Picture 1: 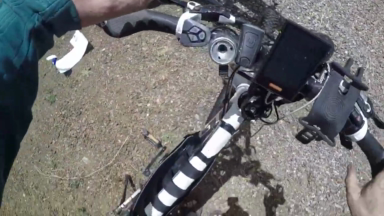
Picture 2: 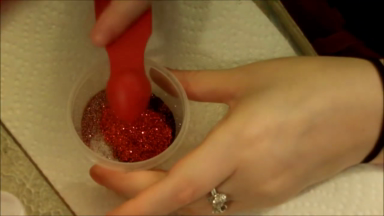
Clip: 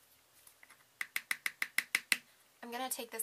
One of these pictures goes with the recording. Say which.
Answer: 2